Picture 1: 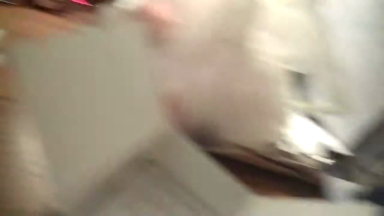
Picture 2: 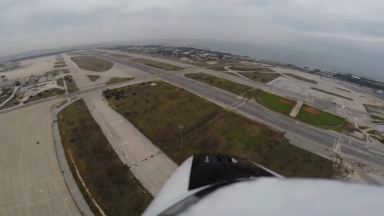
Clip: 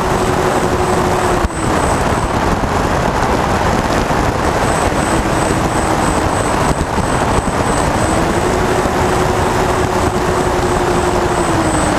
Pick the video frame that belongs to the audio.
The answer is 2